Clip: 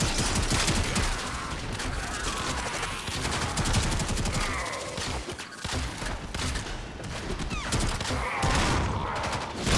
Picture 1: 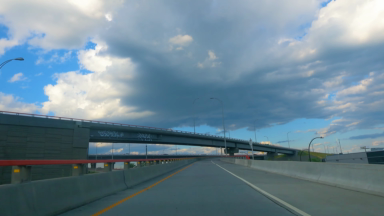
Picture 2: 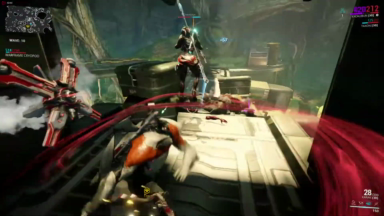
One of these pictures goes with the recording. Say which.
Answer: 2